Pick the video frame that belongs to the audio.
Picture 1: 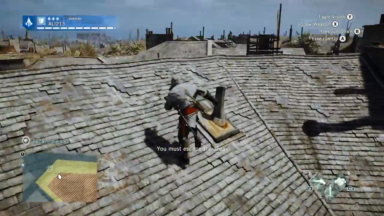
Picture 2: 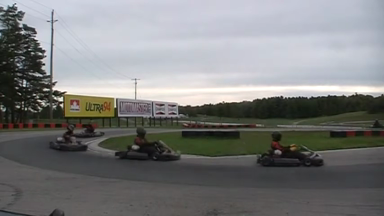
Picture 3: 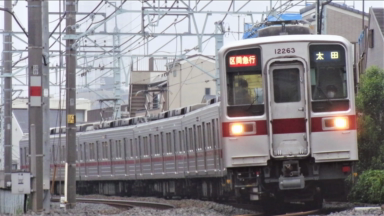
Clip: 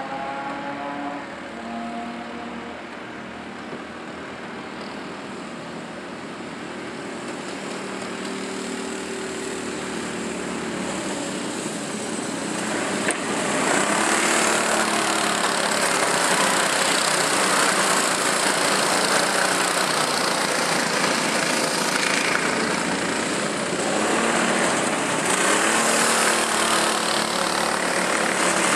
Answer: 2